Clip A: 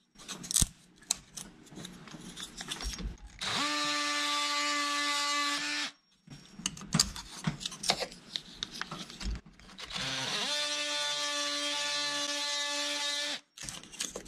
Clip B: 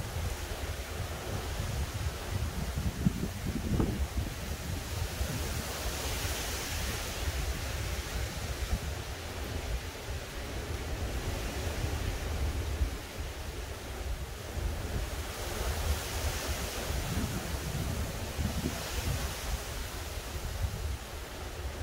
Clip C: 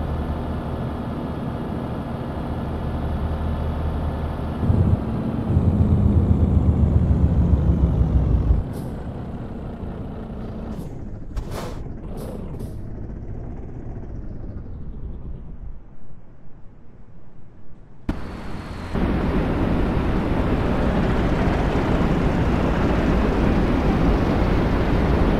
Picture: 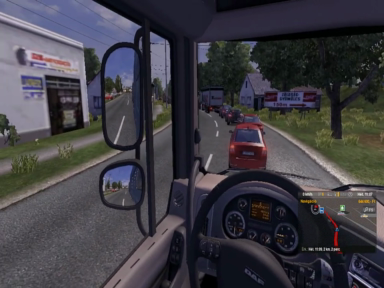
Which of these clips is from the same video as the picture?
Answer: C